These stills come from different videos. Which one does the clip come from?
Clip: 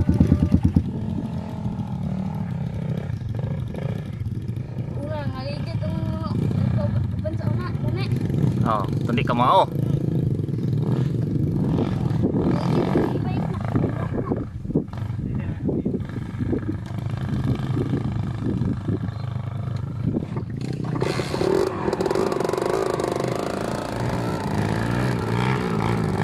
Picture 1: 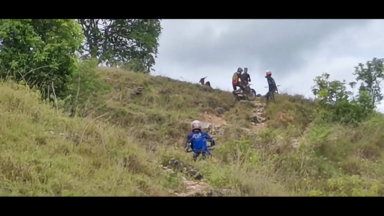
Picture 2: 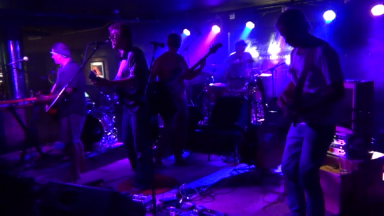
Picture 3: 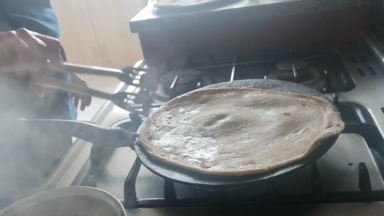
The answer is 1